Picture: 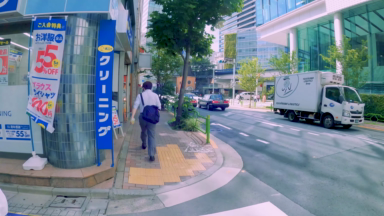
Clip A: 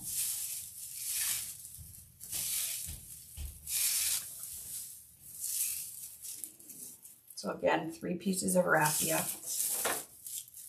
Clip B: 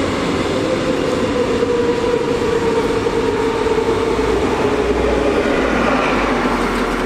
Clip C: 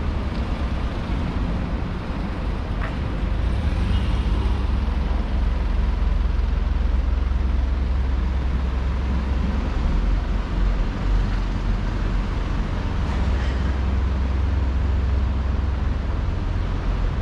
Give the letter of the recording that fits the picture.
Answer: C